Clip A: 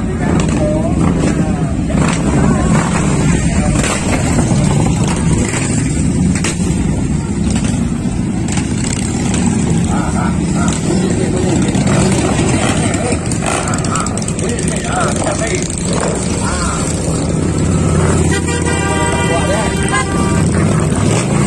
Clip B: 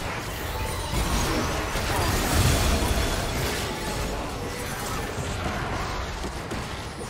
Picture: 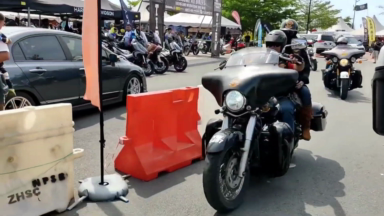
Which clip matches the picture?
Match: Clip A